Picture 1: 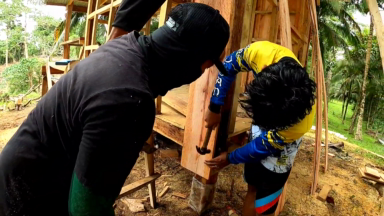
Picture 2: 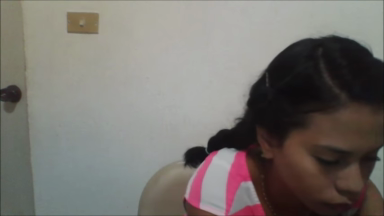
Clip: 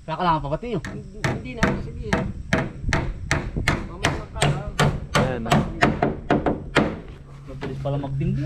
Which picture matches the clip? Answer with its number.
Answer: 1